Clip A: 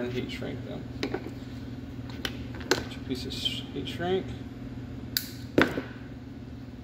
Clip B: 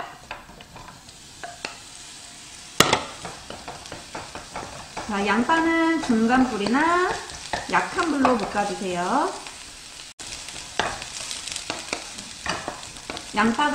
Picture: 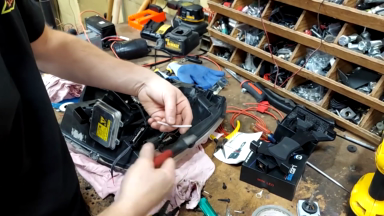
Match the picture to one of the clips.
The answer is A